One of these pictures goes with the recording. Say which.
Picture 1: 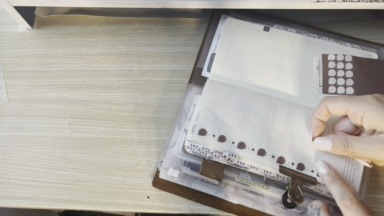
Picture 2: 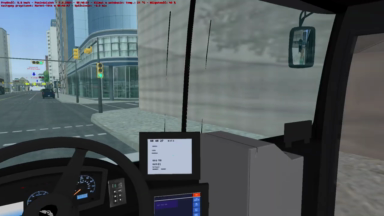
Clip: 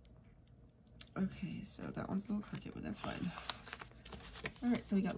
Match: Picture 1